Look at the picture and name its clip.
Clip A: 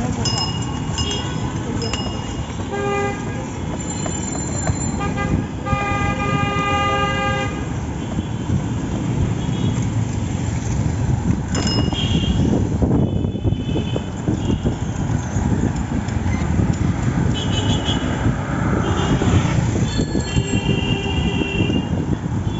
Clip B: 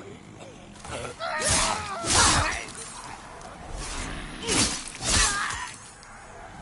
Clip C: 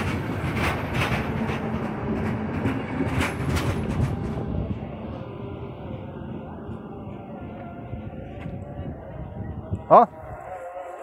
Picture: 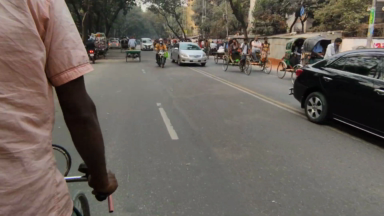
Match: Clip A